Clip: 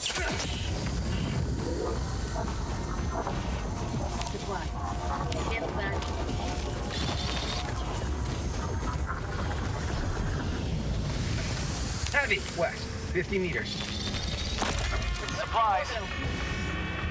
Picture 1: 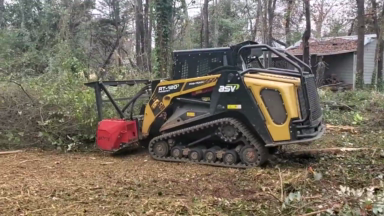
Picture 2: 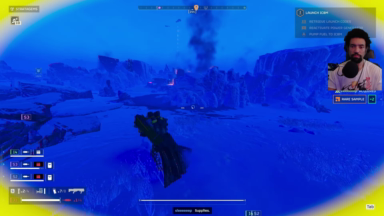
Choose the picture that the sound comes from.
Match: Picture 2